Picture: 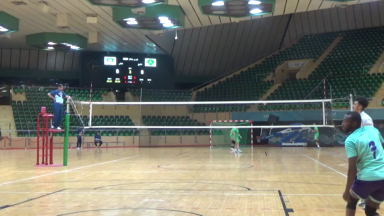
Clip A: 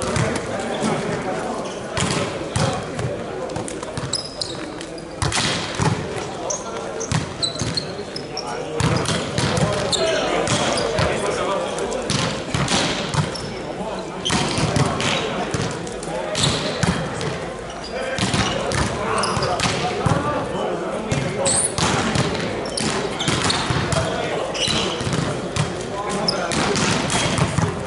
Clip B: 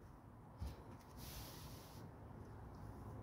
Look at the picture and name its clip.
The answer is A